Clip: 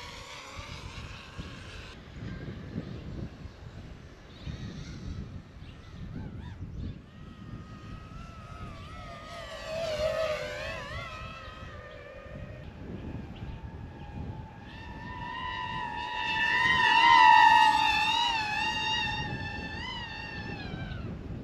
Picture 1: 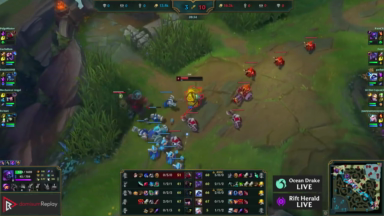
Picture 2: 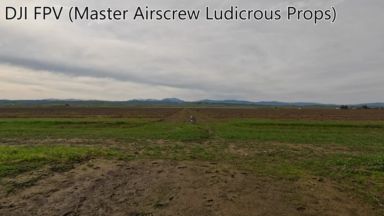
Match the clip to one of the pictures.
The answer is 2